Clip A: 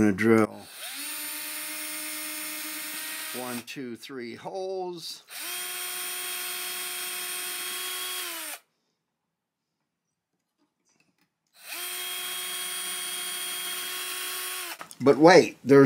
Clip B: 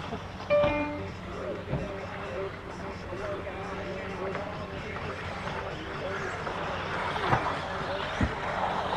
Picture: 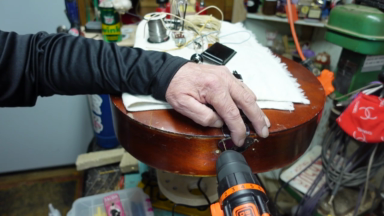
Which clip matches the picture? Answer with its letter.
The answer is A